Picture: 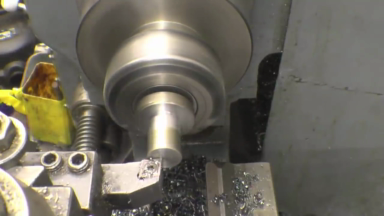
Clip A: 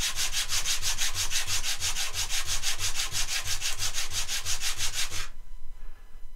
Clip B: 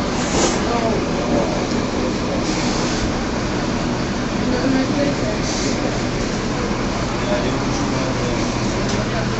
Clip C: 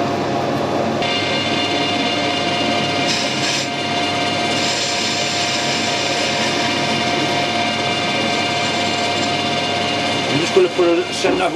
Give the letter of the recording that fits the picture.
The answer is C